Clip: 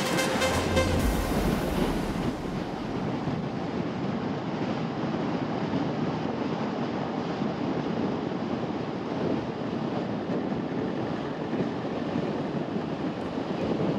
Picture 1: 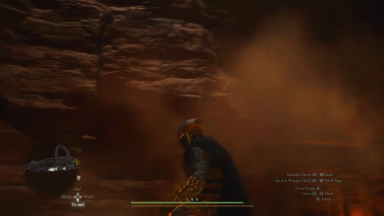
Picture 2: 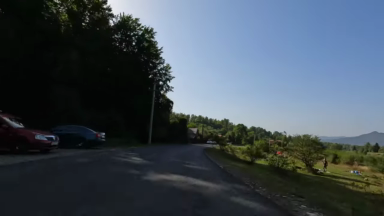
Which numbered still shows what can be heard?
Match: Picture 2